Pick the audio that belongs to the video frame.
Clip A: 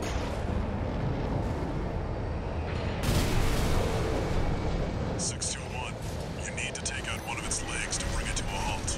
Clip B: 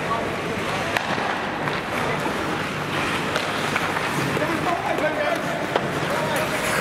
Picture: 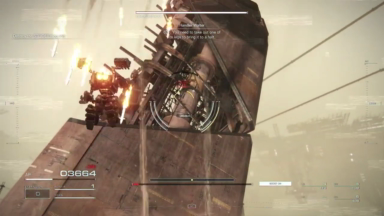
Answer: A